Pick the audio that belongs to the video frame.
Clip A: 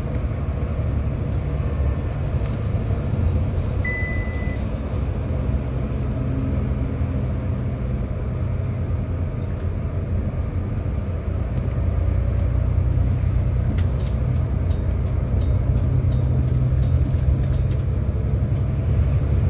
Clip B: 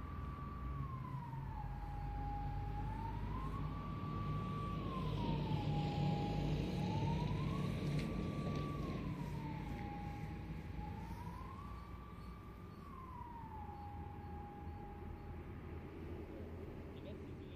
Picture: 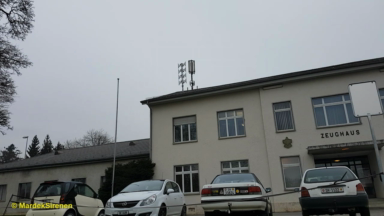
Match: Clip B